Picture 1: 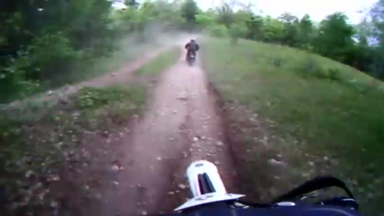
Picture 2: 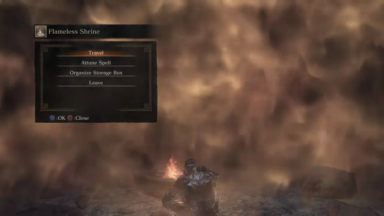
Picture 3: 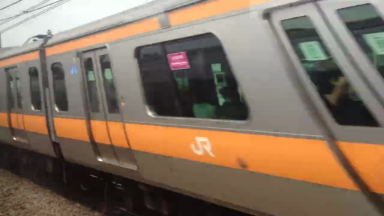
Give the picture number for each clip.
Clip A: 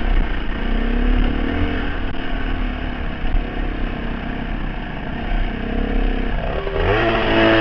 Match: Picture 1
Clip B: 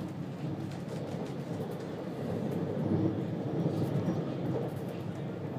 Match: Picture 3